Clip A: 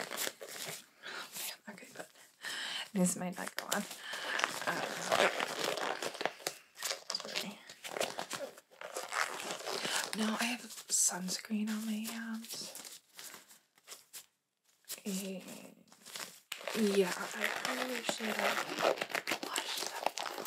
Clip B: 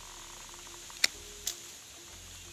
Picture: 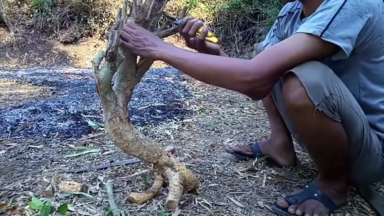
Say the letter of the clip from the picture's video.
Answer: B